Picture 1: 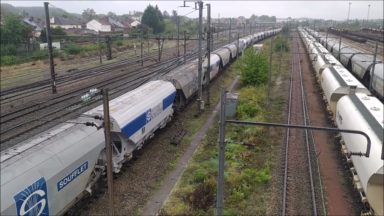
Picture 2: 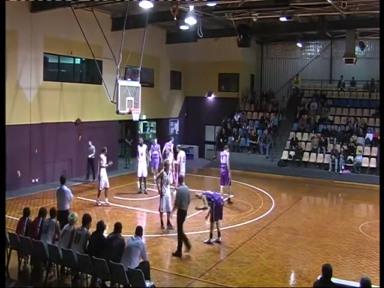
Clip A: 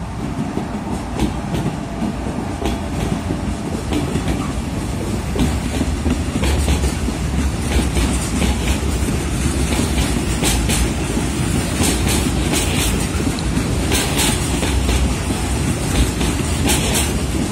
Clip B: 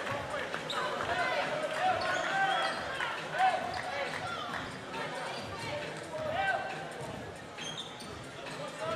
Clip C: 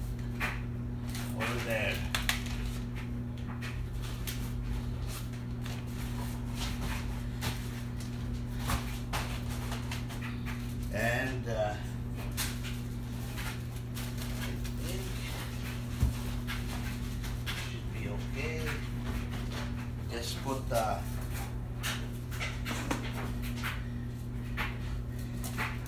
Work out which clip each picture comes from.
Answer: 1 A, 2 B